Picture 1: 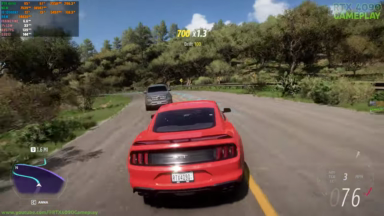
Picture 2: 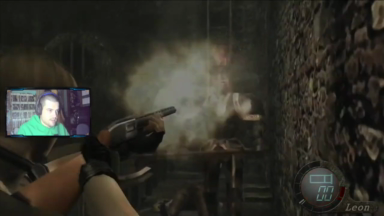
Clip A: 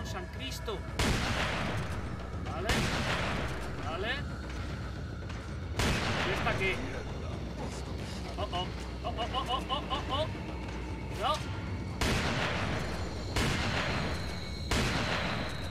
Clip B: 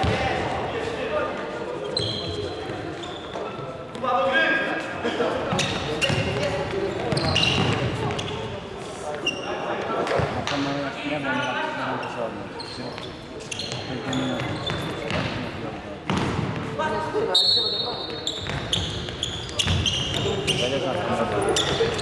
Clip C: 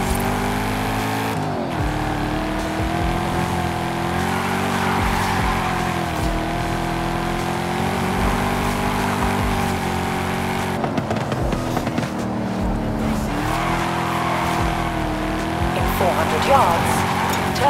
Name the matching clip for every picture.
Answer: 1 C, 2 A